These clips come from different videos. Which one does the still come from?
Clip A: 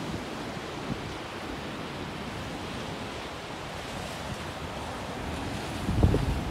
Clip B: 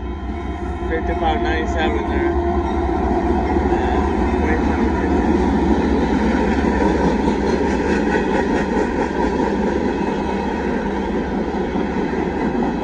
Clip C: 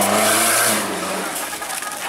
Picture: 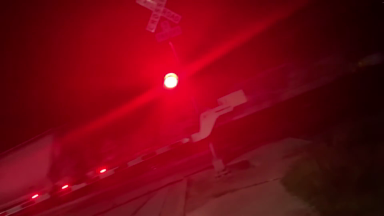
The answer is B